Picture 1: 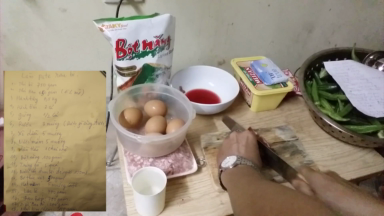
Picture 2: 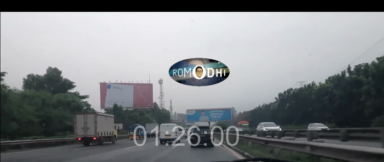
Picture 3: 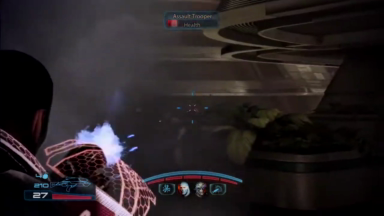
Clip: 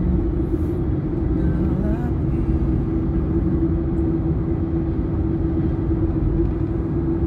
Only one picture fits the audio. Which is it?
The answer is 2